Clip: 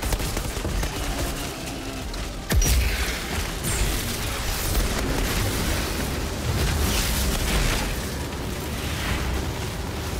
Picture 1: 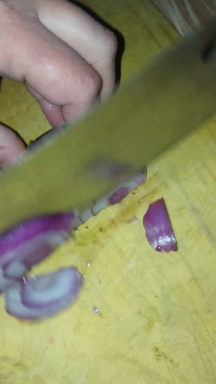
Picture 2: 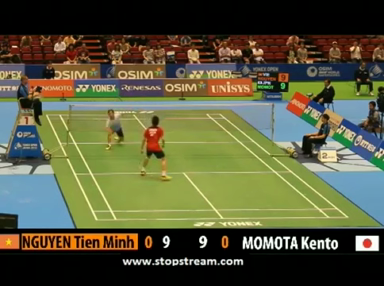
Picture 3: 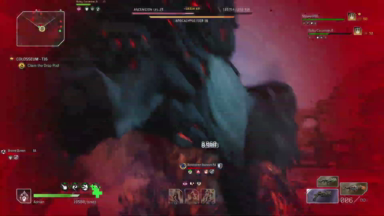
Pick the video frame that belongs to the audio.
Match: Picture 3